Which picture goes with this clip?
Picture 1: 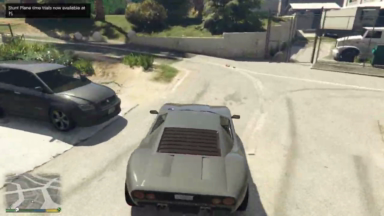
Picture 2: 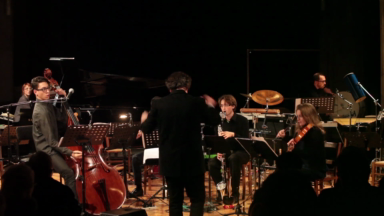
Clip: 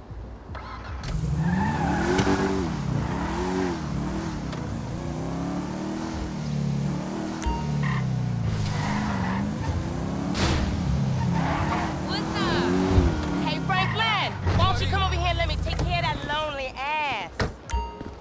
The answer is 1